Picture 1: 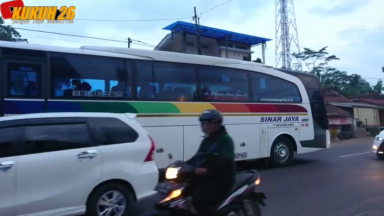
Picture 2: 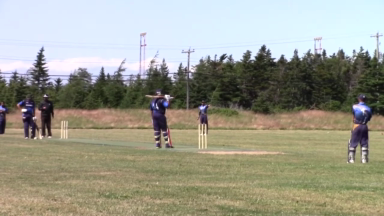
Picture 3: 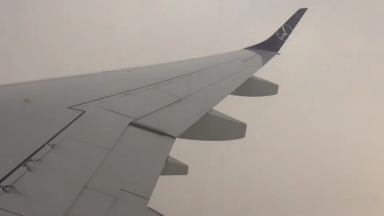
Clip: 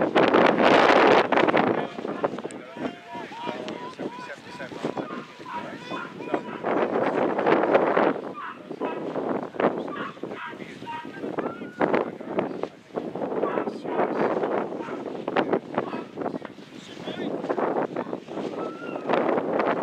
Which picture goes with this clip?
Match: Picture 2